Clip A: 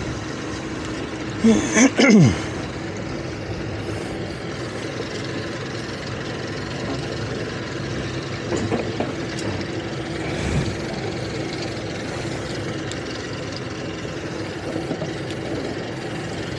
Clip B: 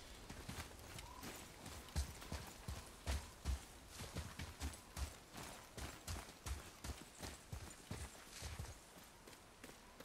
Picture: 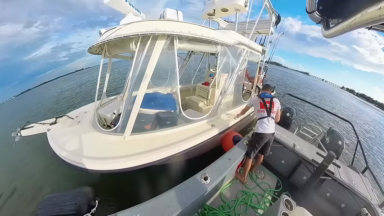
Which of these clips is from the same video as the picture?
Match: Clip A